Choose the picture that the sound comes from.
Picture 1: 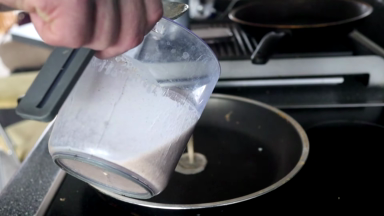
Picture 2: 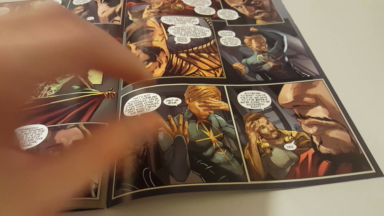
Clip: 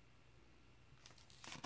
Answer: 2